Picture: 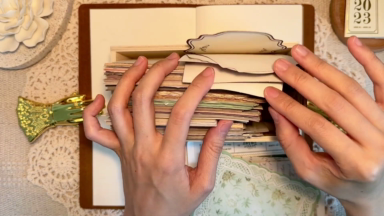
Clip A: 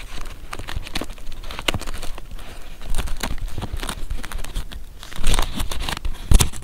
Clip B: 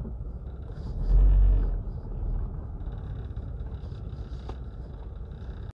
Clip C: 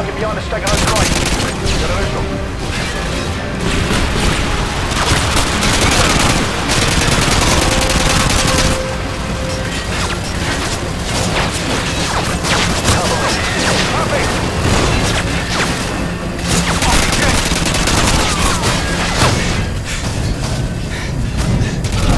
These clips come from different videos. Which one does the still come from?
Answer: A